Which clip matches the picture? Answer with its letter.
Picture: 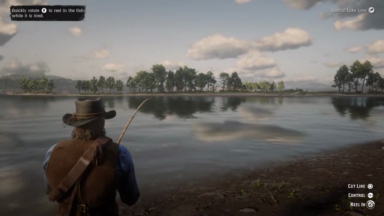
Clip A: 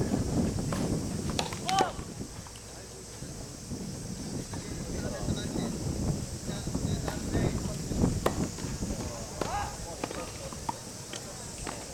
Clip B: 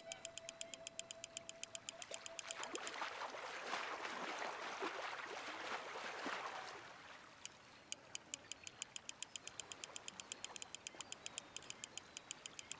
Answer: B